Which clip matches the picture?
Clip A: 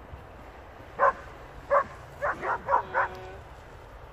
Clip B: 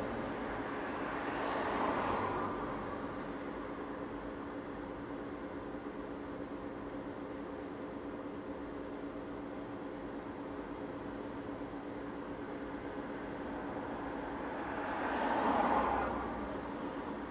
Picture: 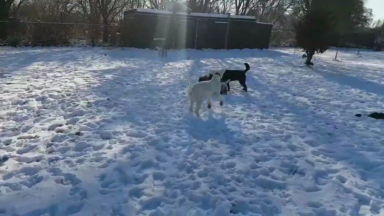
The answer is A